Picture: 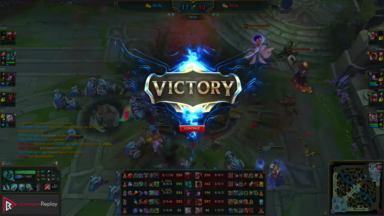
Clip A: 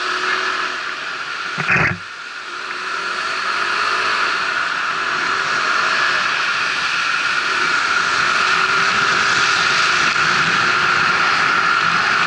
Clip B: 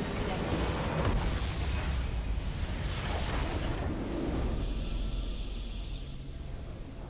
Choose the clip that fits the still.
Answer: B